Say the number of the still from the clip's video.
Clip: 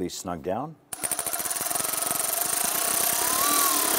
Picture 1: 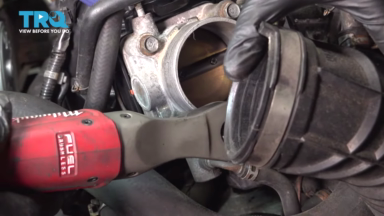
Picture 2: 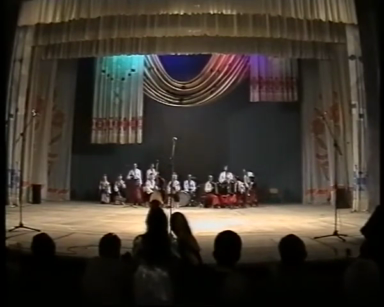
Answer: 1